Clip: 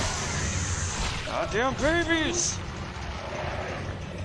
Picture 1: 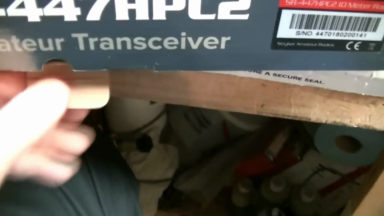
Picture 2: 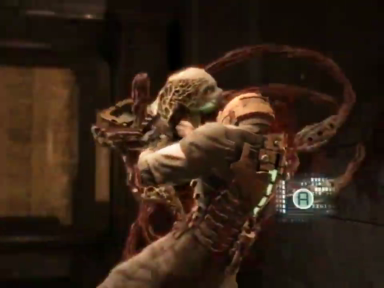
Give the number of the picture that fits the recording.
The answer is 2